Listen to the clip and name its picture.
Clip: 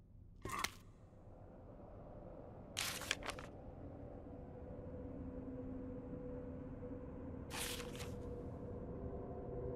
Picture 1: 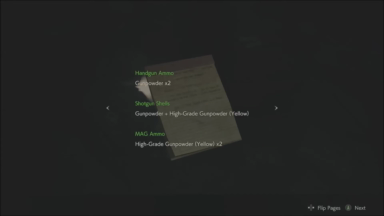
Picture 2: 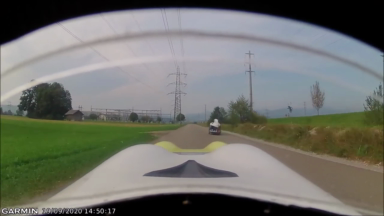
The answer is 1